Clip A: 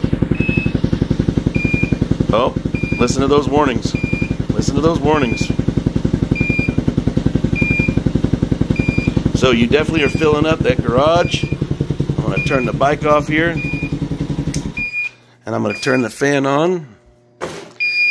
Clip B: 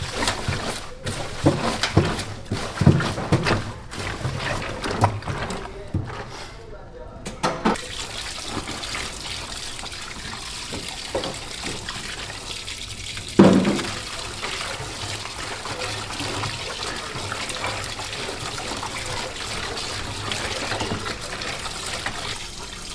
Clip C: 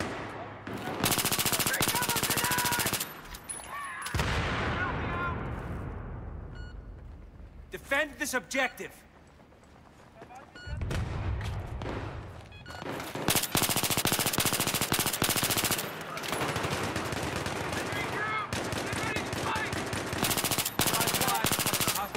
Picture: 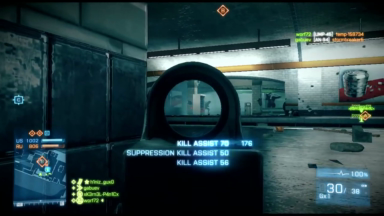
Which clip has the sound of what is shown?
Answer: C